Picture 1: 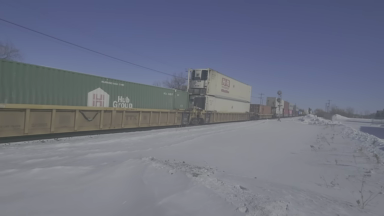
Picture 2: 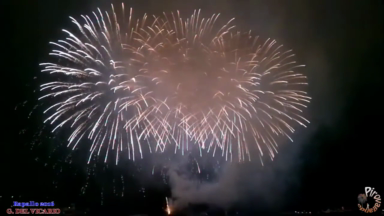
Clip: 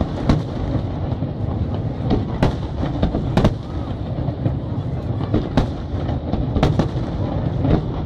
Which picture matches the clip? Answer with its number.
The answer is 2